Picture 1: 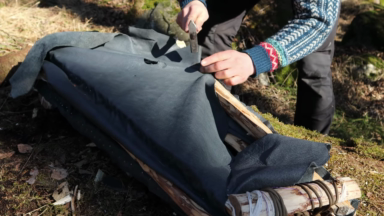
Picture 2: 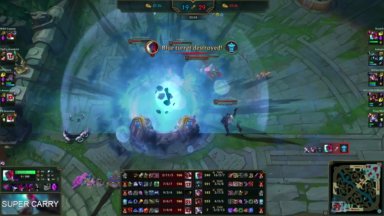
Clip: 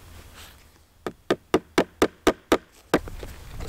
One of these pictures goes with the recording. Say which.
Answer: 1